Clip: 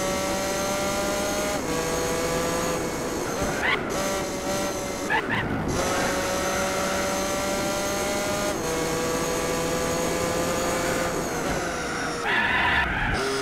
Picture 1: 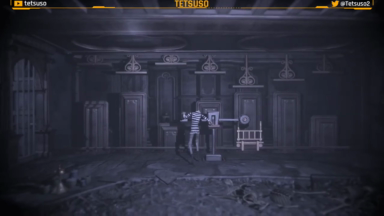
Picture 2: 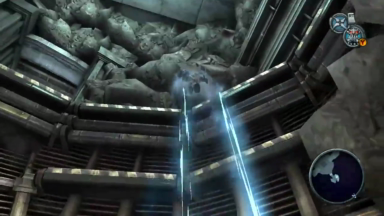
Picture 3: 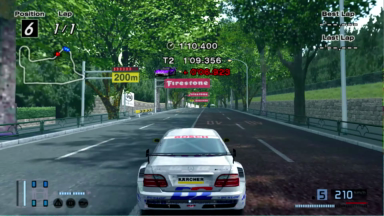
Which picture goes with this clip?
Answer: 3